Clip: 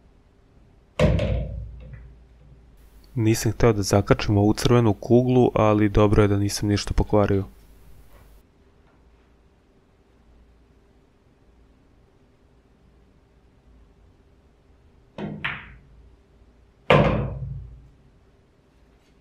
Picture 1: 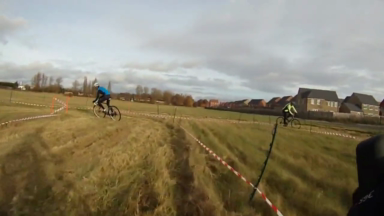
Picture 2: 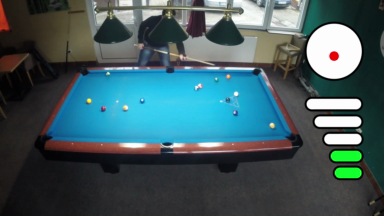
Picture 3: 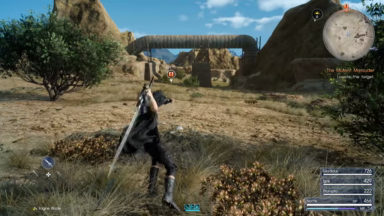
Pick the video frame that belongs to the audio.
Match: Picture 2